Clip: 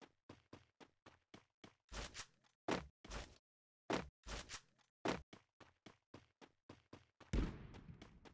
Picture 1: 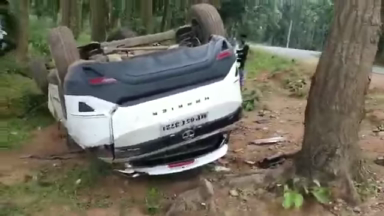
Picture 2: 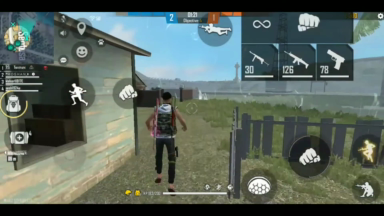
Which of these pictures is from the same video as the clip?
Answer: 2